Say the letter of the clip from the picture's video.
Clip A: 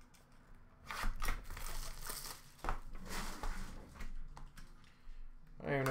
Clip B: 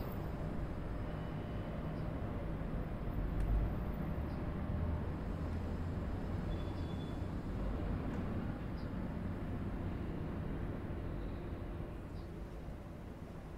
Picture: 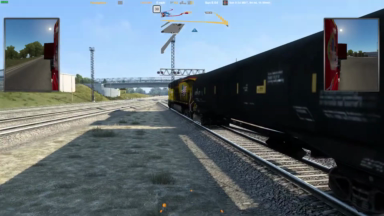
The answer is B